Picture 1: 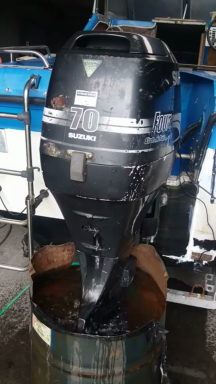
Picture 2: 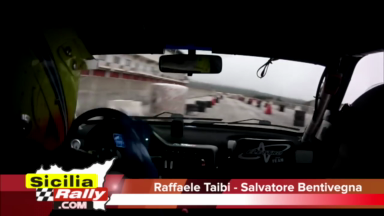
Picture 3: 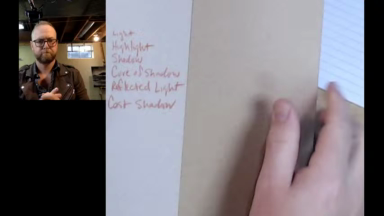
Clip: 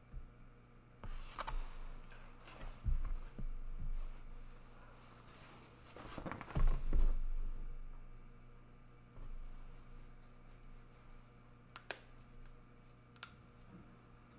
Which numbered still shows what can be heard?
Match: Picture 3